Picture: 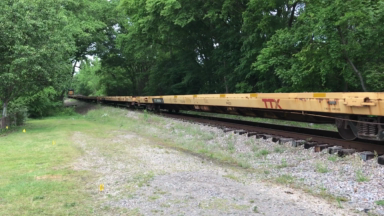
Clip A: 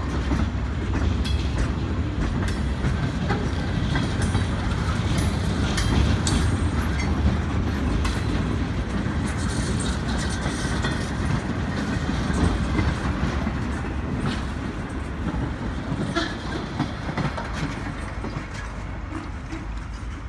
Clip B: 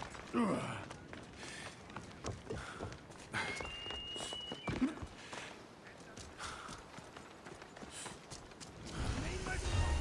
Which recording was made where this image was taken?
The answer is A